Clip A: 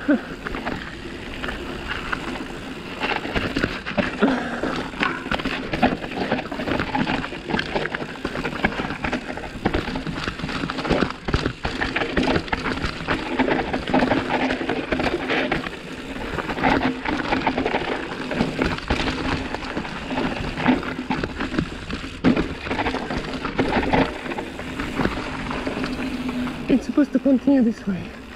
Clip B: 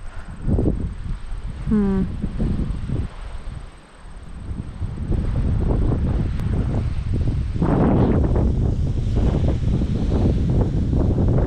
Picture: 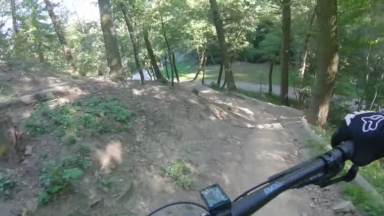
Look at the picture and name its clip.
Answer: A